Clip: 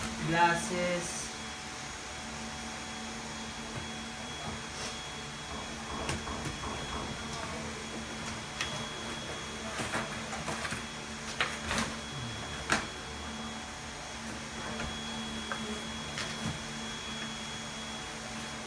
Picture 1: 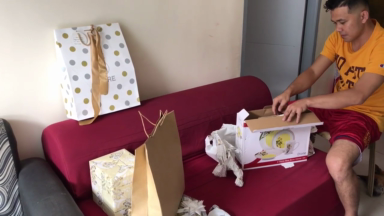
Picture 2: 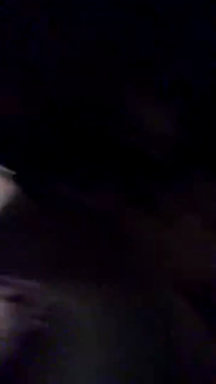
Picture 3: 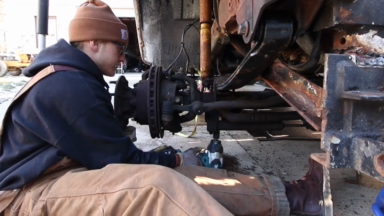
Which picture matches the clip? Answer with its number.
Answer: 1